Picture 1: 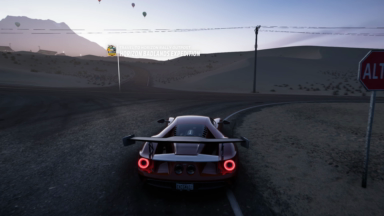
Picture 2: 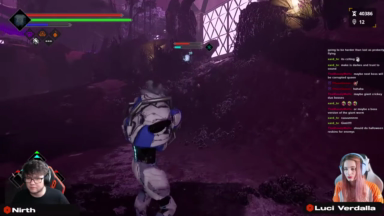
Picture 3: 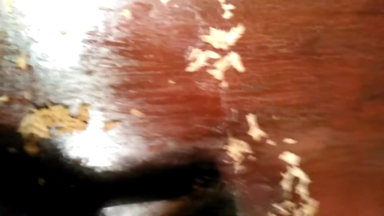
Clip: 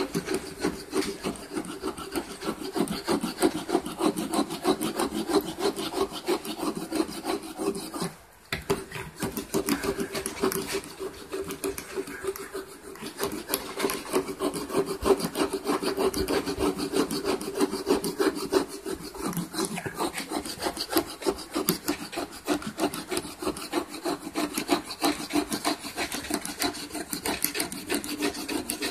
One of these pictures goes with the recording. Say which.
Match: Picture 3